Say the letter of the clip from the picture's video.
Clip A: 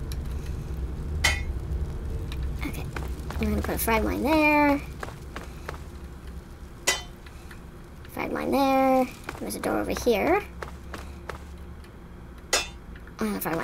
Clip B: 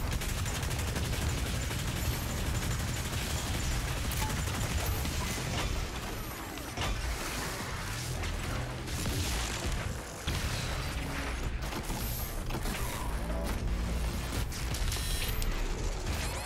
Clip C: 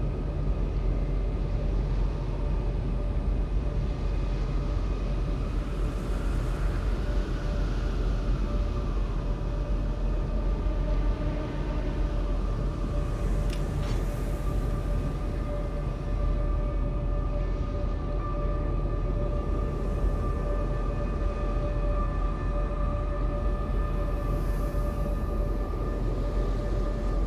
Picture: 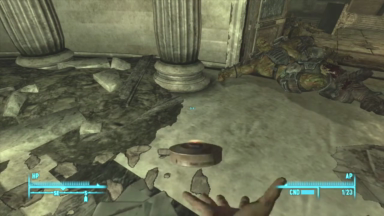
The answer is A